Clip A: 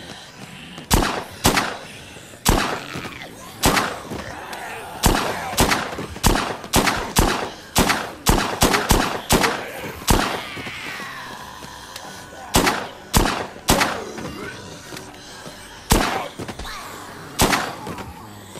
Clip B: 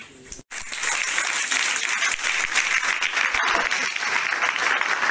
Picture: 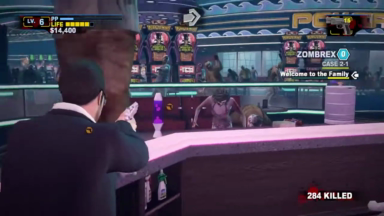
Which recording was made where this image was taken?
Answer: A